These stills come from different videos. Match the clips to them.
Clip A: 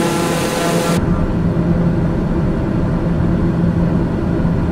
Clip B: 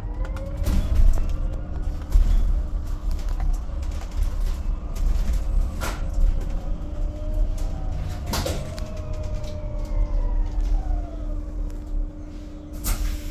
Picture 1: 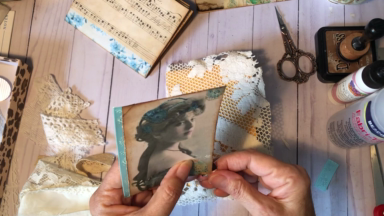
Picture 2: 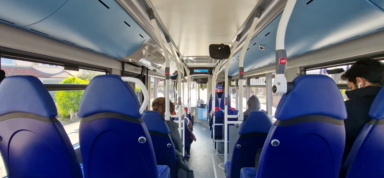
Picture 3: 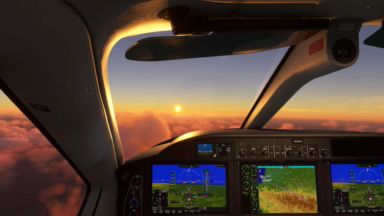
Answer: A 3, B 2